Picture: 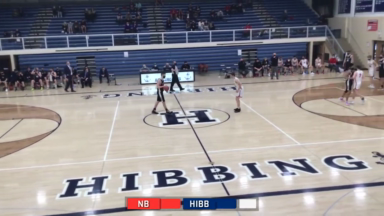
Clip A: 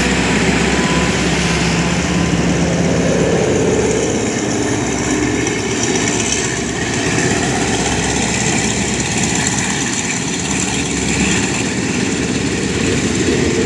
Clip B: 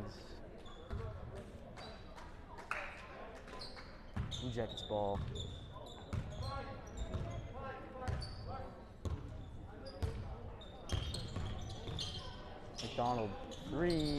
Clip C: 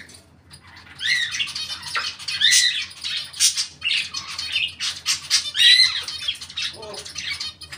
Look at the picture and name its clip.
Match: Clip B